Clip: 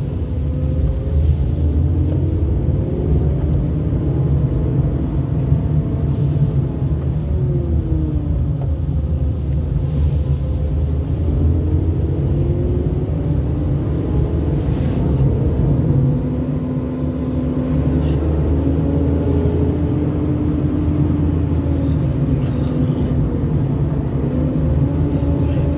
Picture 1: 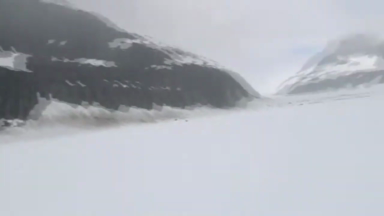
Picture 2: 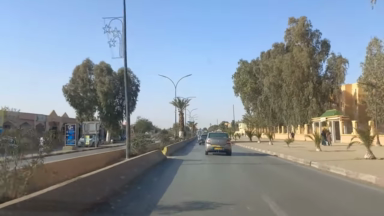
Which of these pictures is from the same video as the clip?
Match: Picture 2